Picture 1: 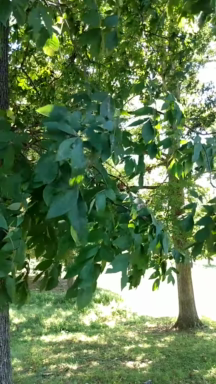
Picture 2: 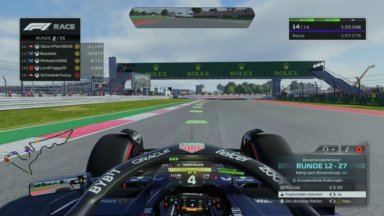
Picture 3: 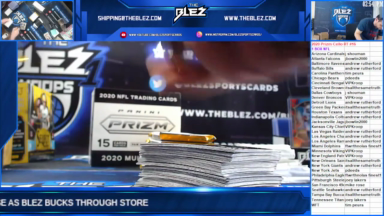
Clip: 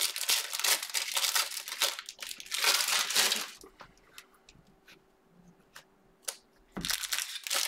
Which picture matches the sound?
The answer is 3